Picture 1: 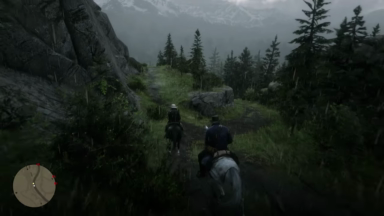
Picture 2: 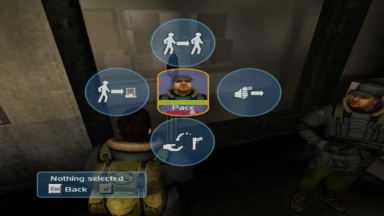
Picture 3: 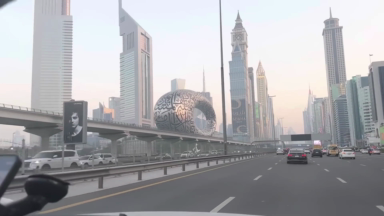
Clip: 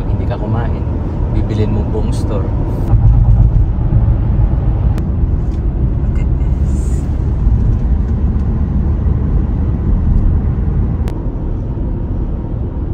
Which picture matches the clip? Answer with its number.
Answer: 3